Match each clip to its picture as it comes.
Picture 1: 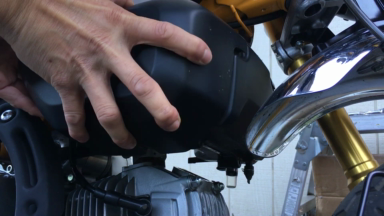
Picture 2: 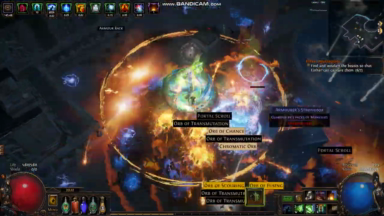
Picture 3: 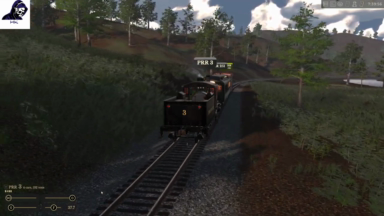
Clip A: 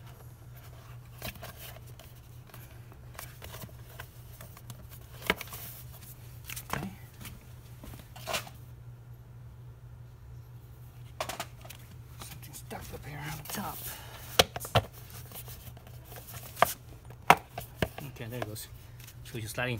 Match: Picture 1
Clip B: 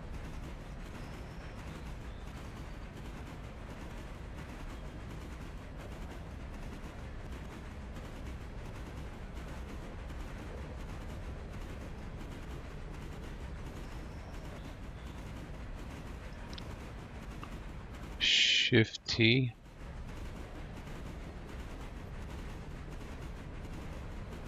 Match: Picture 3